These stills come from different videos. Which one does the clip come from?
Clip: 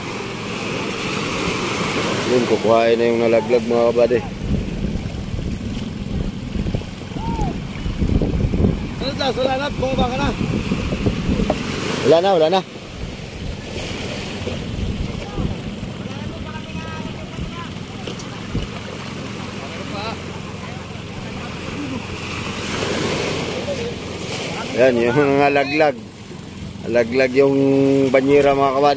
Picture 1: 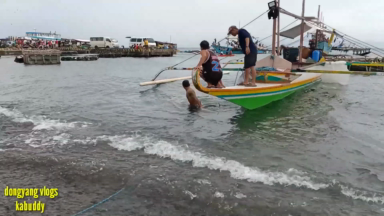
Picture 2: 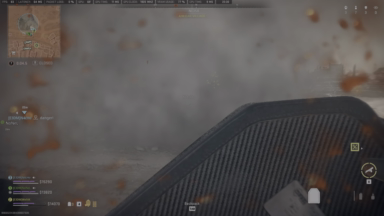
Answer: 1